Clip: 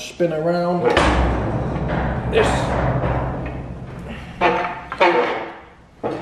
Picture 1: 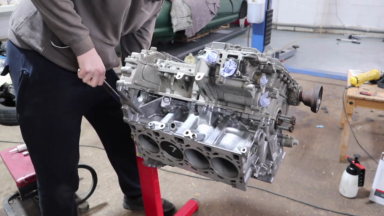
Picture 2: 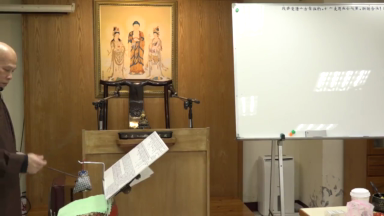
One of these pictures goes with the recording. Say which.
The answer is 1